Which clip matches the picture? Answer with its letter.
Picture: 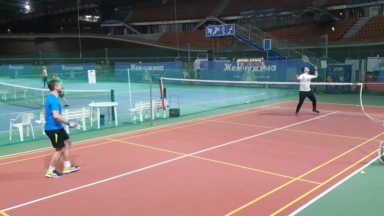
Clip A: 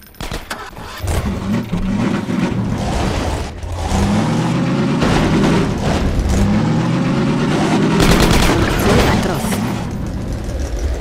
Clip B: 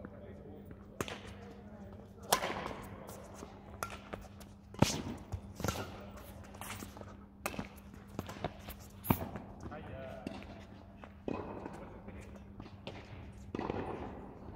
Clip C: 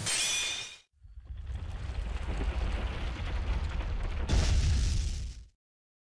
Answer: B